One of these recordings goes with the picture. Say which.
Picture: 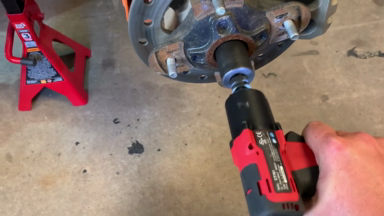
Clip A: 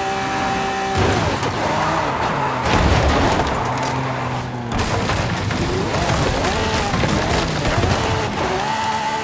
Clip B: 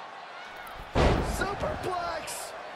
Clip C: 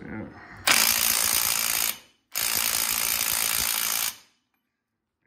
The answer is C